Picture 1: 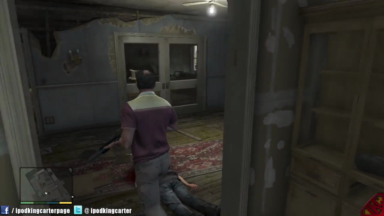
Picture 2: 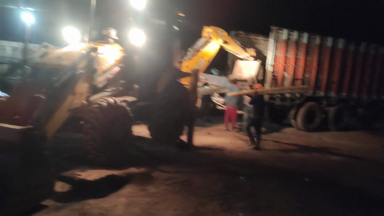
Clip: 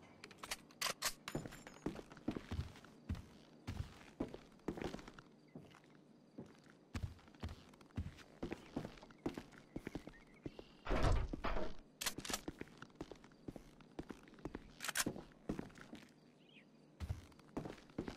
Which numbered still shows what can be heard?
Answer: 1